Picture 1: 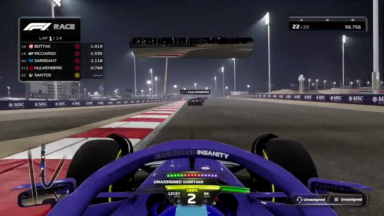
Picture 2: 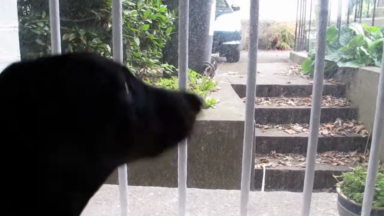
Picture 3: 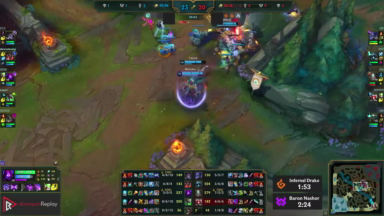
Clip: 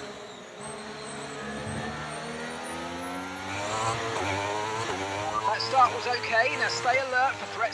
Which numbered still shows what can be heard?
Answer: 1